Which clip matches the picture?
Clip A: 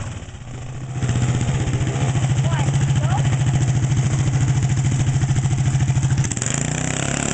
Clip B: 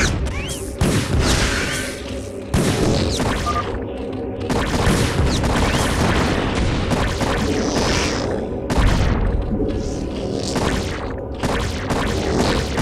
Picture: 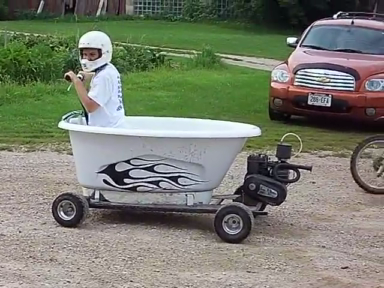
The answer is A